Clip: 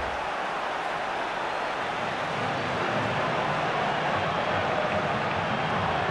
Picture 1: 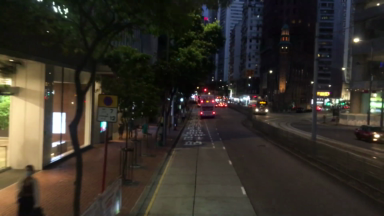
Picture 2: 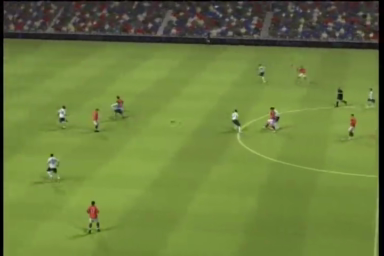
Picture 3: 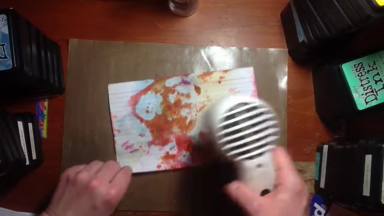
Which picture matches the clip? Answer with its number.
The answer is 2